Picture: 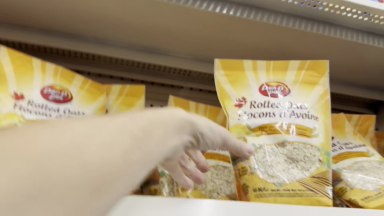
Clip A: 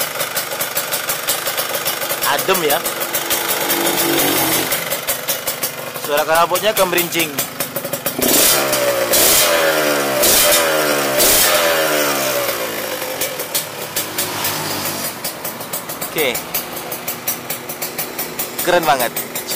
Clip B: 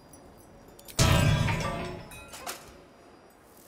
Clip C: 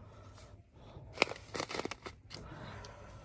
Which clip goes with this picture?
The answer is C